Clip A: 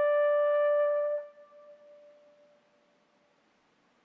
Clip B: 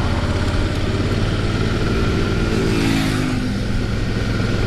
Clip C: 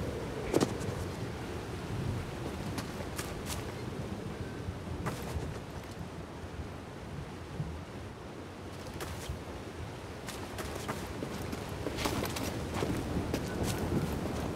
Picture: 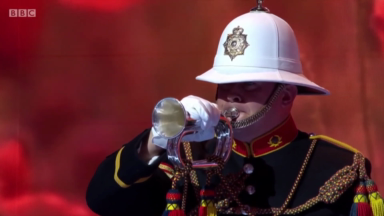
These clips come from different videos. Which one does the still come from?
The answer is A